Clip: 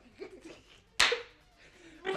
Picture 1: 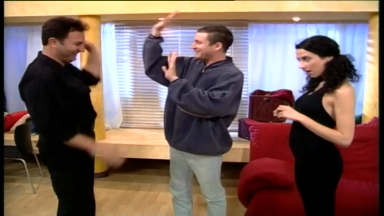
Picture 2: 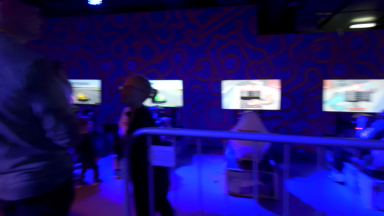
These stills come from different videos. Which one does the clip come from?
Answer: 1